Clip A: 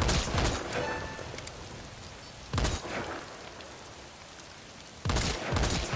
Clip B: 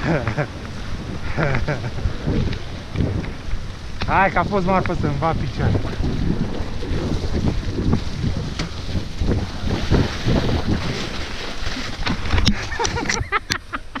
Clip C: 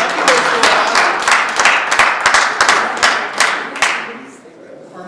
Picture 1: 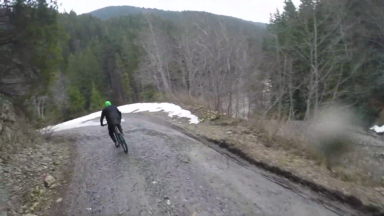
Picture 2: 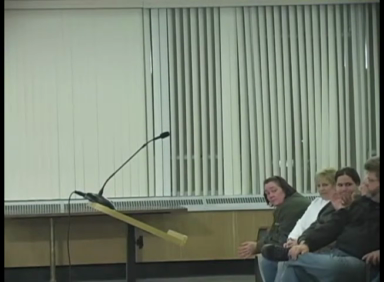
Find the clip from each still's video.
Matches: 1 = B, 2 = C